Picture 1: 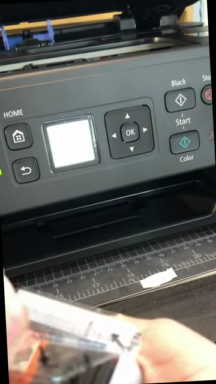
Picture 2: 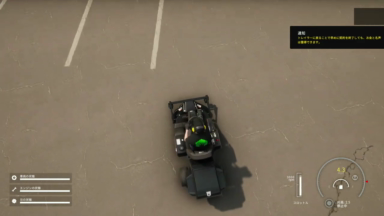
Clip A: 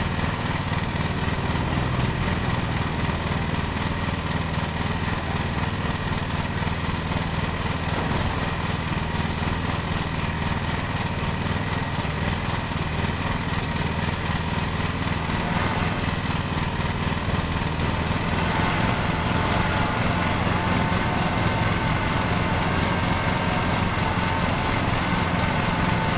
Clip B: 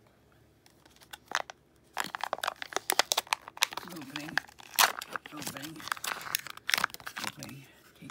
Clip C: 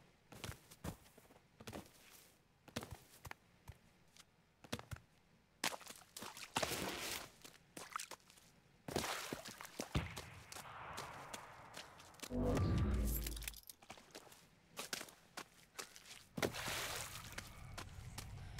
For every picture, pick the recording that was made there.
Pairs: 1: B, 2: A